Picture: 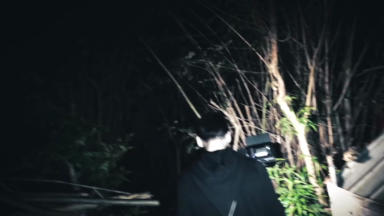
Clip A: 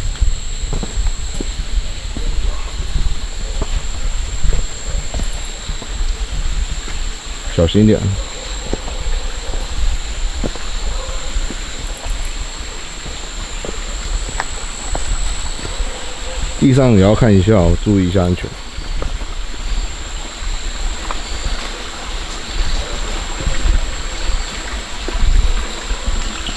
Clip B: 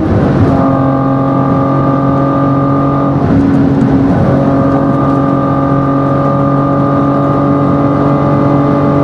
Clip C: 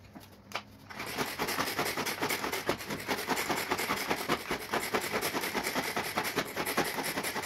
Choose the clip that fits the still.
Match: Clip A